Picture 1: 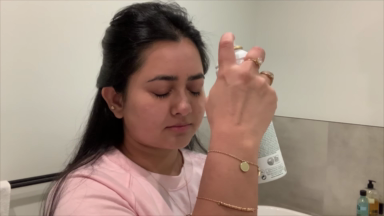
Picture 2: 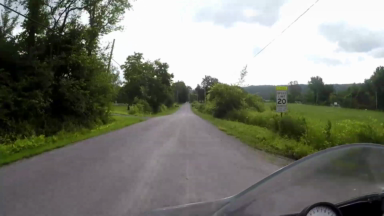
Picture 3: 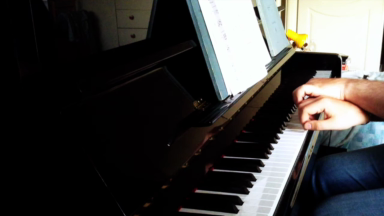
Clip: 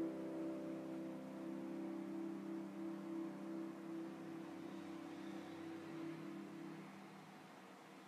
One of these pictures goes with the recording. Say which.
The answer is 3